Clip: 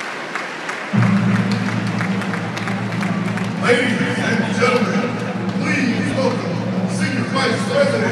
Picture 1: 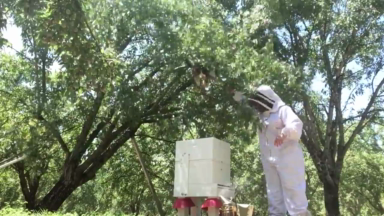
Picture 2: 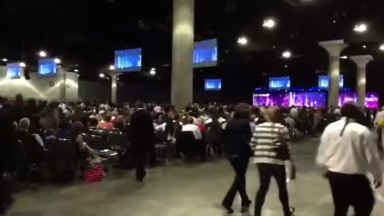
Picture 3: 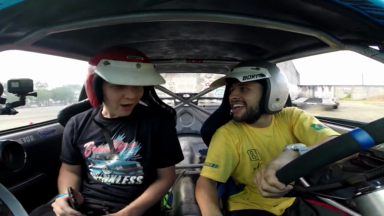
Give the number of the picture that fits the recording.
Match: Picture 2